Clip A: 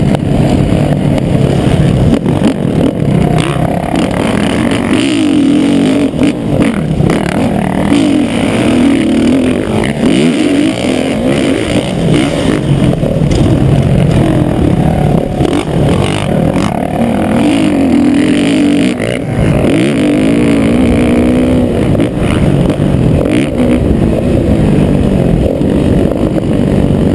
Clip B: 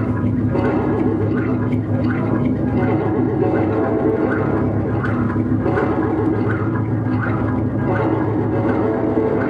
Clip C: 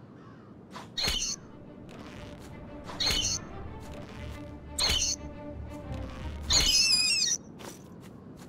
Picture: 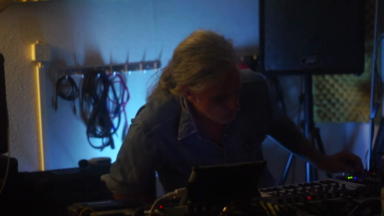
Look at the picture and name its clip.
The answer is B